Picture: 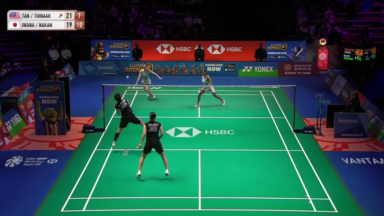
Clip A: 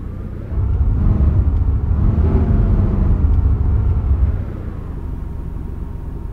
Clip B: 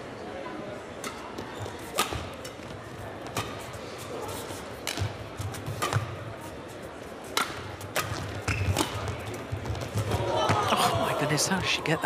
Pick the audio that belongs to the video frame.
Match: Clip B